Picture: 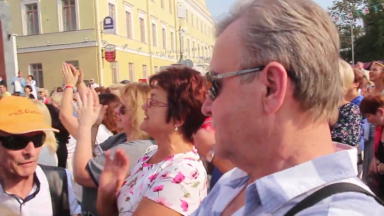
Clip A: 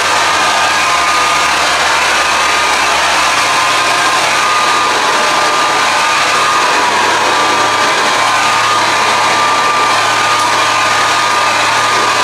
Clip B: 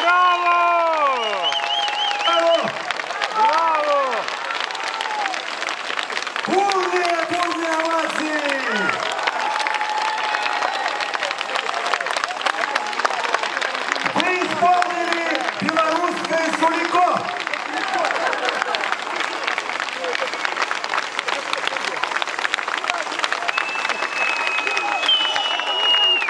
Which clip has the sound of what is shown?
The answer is B